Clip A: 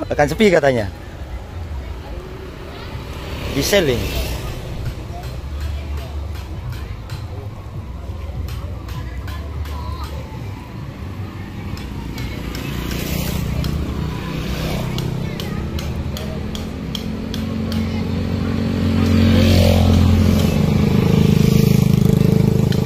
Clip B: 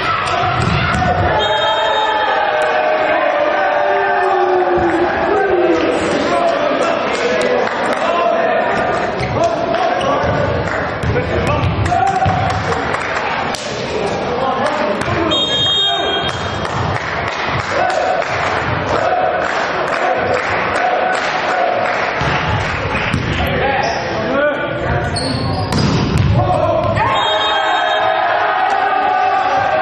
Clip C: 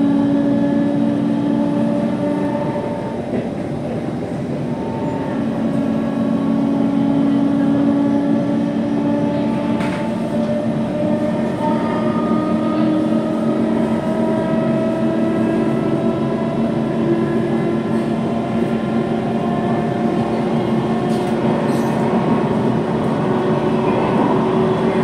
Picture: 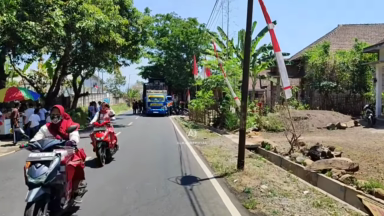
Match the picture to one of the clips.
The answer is A